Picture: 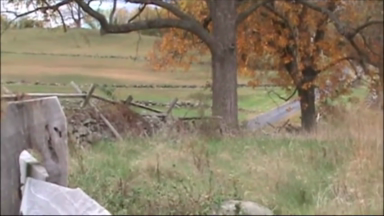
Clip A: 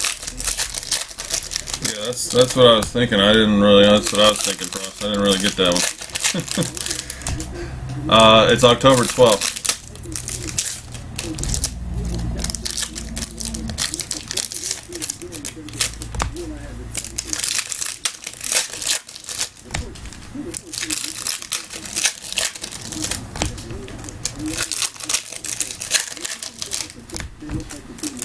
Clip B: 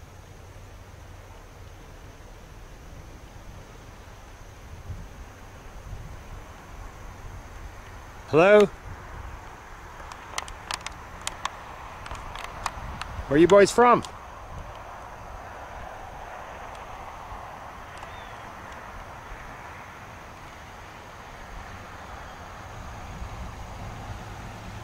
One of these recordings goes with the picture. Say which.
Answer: B